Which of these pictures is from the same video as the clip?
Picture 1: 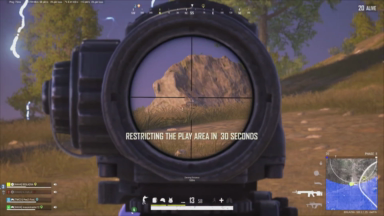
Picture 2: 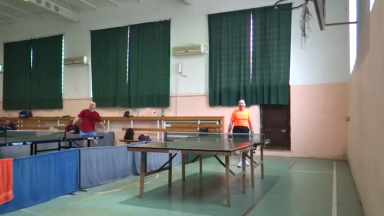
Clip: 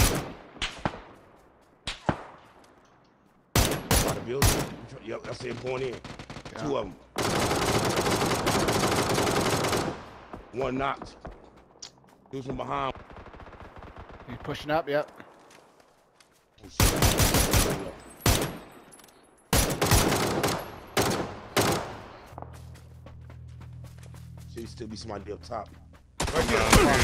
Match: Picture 1